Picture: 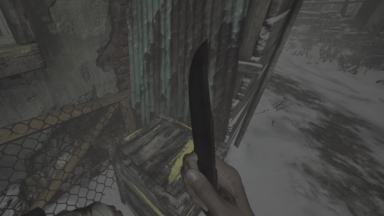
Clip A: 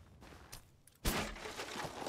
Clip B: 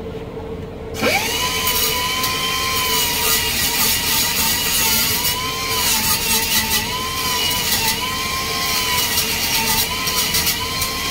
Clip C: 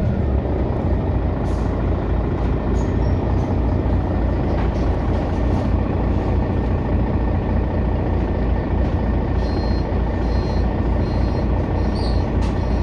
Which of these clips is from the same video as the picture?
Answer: A